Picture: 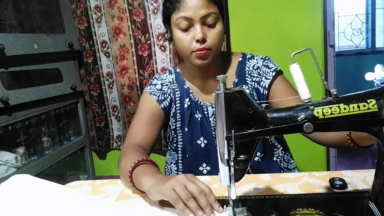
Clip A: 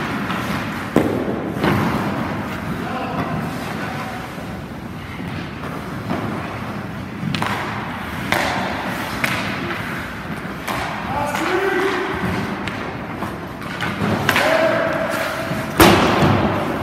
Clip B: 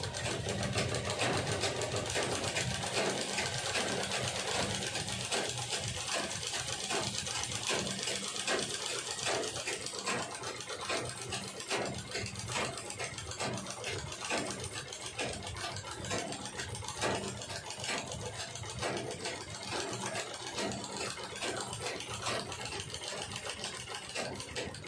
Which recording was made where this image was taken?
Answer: B